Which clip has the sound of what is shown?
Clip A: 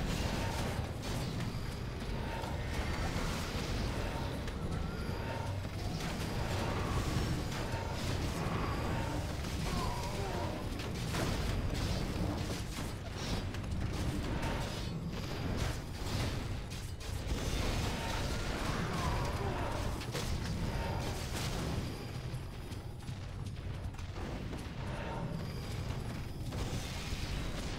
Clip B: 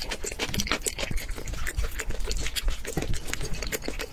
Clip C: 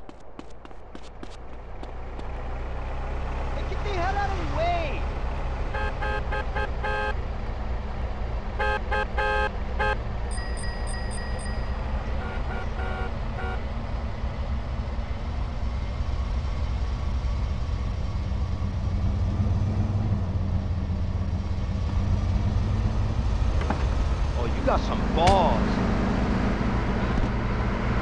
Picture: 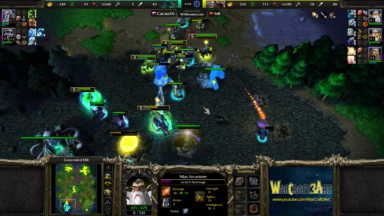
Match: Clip A